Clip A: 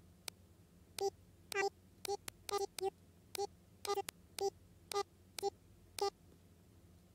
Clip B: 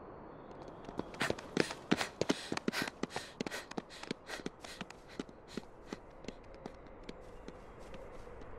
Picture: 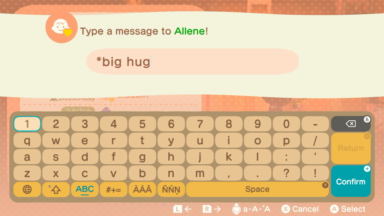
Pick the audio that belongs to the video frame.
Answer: A